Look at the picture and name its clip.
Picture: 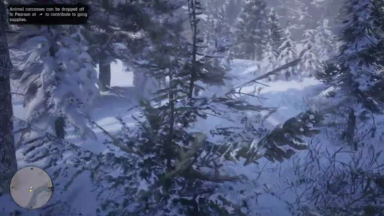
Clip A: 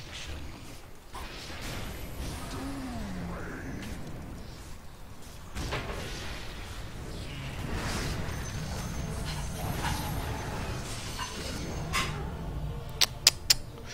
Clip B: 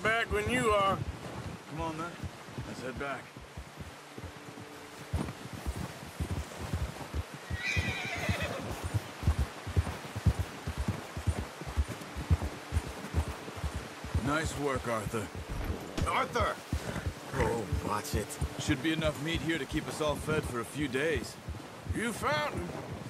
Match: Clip B